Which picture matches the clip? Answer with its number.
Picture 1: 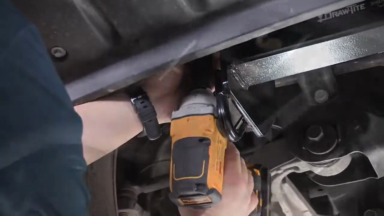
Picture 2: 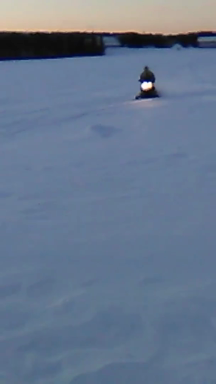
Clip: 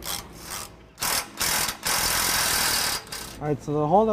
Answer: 1